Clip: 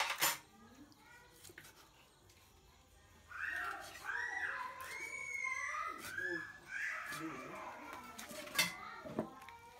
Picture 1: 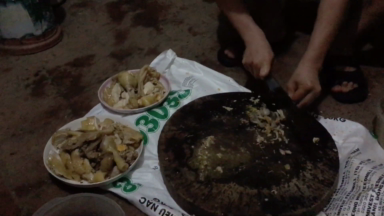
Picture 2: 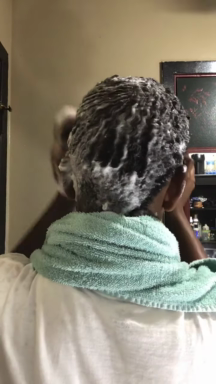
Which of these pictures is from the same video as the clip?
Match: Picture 1